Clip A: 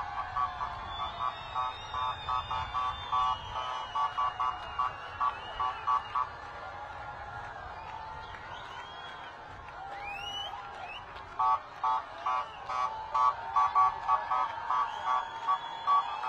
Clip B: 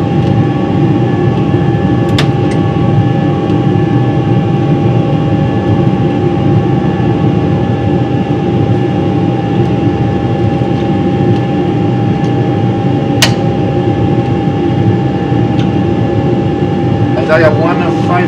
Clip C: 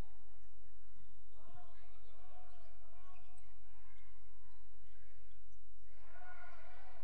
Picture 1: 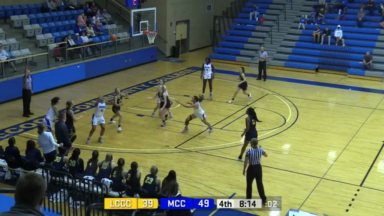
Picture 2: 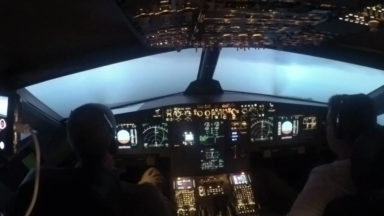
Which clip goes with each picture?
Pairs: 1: C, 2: B